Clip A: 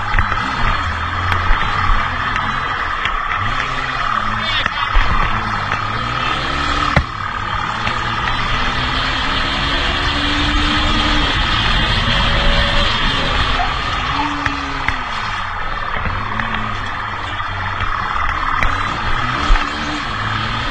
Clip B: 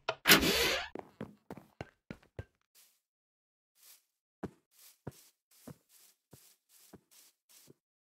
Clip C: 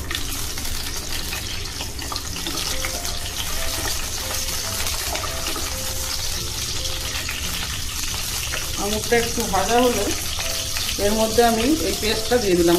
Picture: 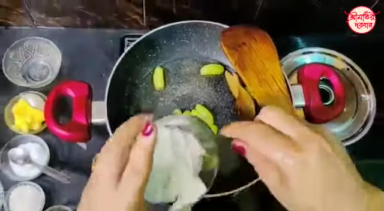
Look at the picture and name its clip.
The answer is C